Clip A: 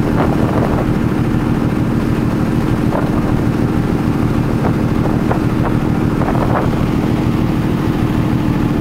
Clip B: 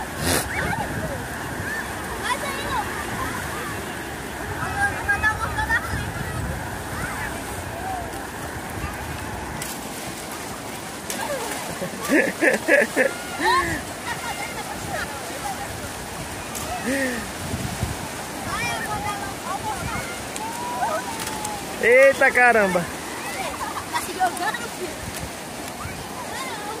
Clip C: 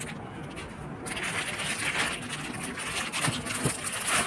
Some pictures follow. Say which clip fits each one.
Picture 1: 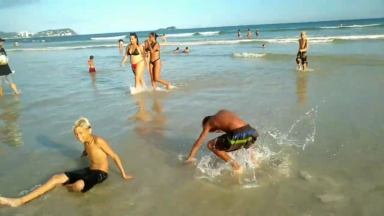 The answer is B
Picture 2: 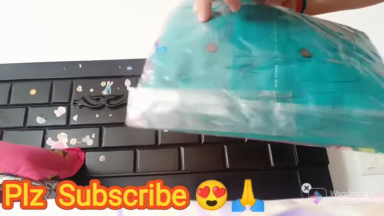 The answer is C